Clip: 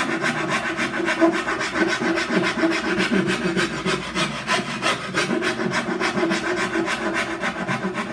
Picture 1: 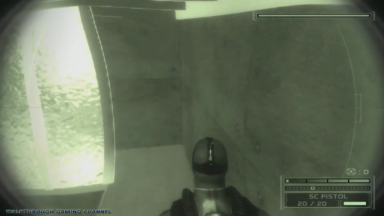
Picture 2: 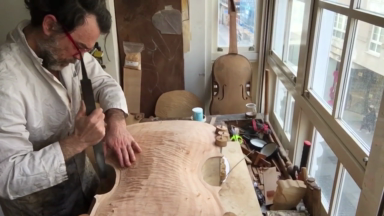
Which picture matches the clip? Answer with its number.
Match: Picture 2